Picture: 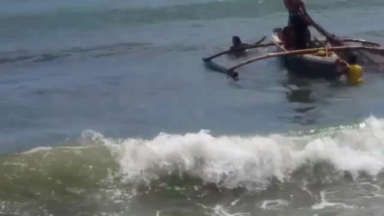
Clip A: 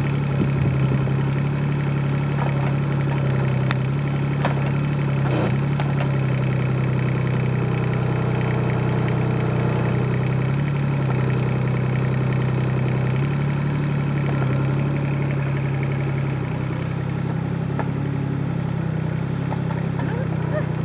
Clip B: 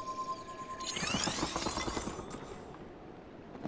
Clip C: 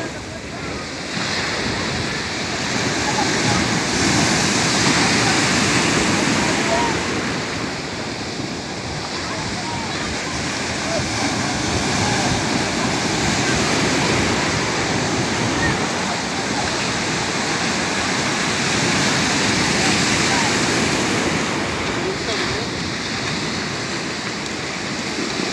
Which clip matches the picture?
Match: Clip C